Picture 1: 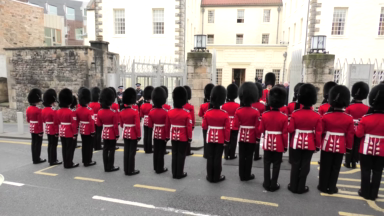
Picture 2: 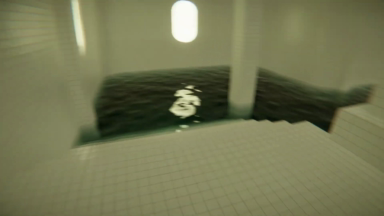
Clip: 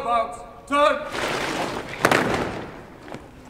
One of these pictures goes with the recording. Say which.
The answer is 1